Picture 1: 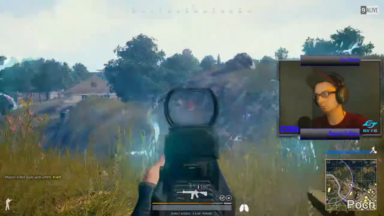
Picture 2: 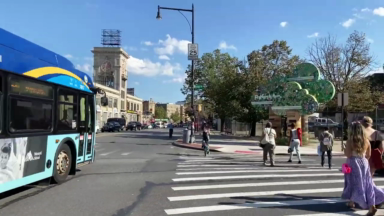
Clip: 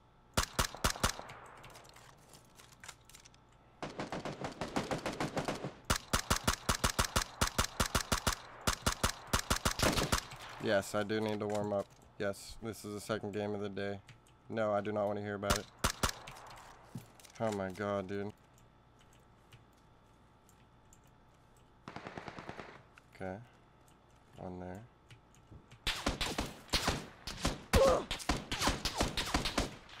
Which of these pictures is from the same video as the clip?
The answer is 1